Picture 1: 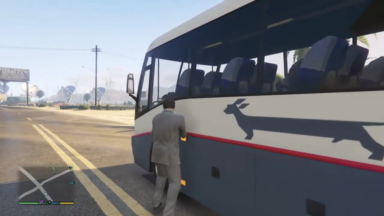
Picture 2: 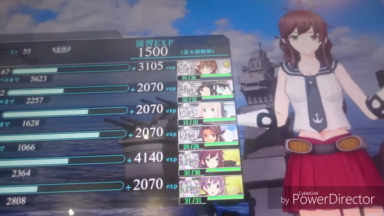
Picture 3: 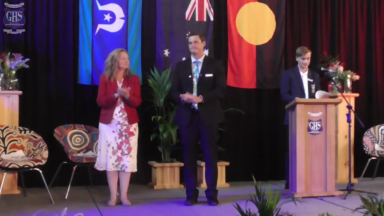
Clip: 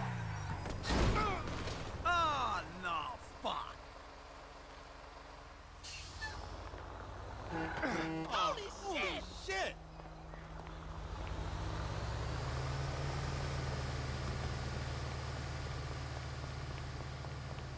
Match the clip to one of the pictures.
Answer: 1